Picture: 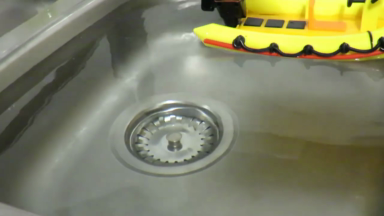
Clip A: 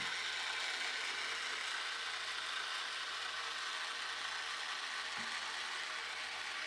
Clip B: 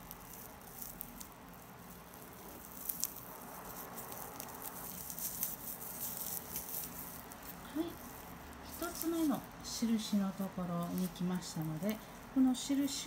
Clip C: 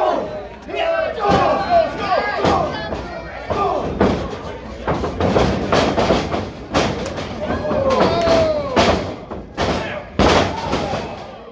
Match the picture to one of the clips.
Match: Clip A